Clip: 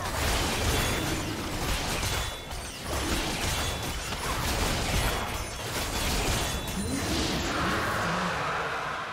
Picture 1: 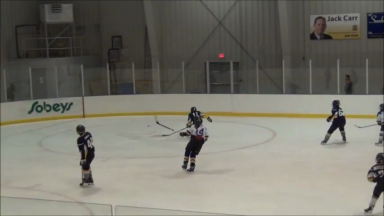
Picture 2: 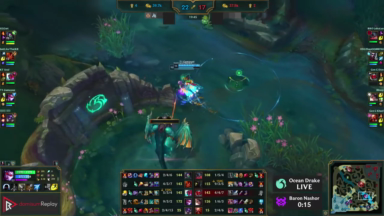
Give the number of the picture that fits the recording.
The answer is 2